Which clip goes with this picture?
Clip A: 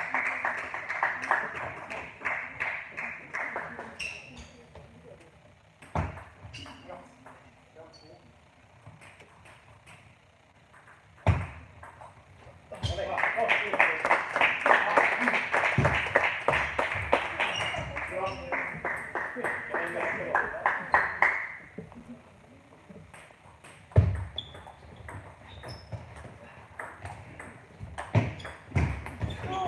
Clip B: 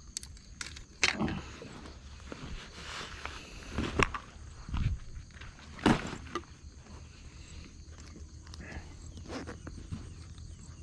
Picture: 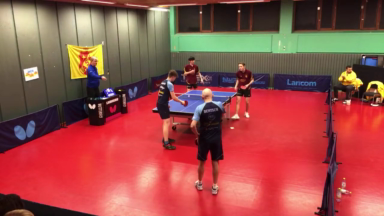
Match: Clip A